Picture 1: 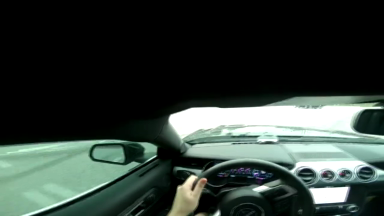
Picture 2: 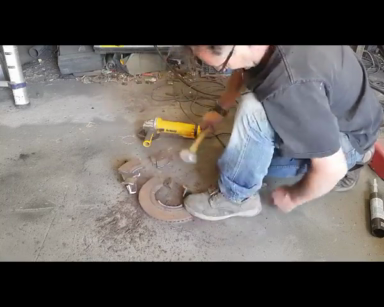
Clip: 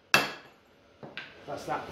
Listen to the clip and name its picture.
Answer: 2